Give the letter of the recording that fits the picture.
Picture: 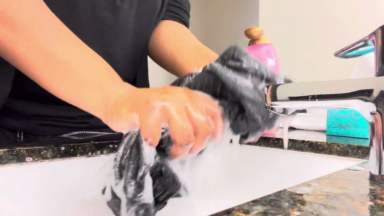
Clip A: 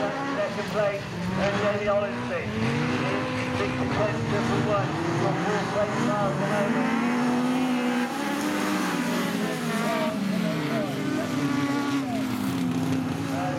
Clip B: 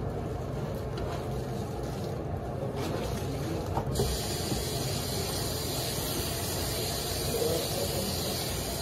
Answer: B